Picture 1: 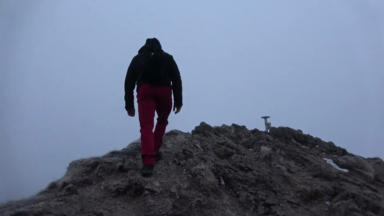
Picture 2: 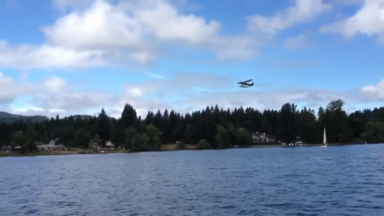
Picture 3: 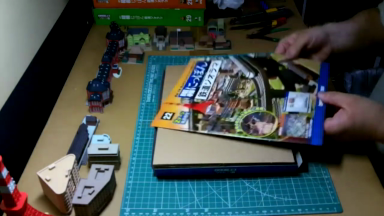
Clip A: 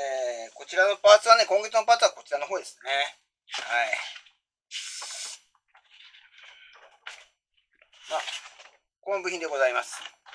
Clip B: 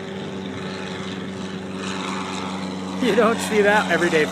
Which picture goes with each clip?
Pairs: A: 3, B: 2